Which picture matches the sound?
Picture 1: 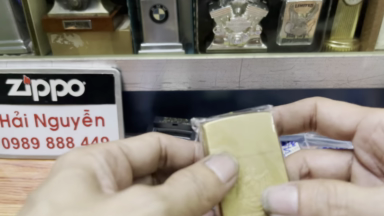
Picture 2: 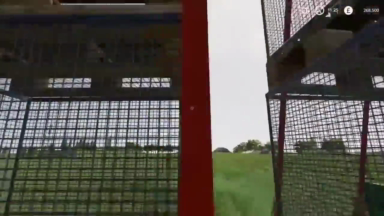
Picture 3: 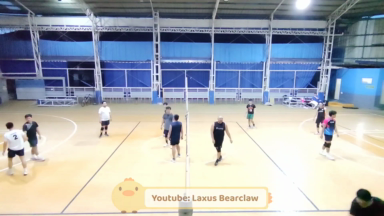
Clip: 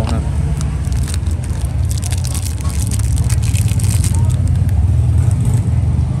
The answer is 1